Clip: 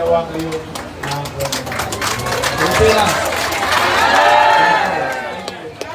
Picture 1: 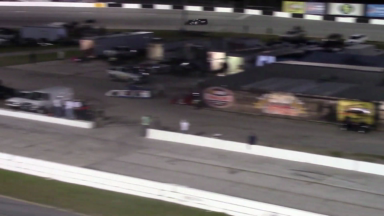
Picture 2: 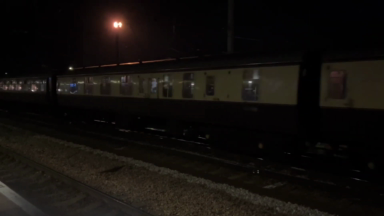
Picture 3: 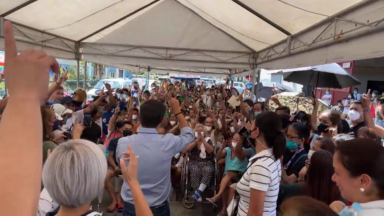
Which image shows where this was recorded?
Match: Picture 3